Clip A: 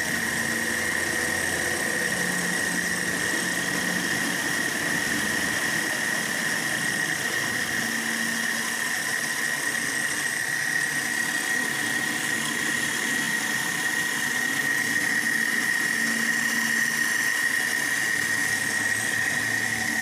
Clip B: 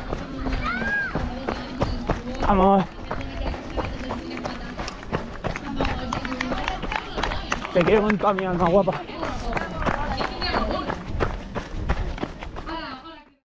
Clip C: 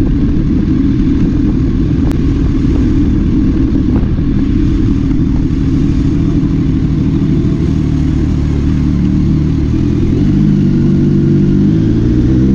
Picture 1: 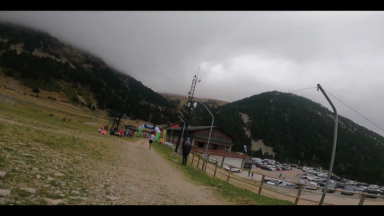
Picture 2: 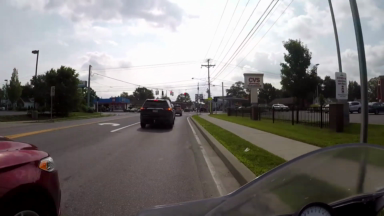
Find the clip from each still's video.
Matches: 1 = B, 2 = C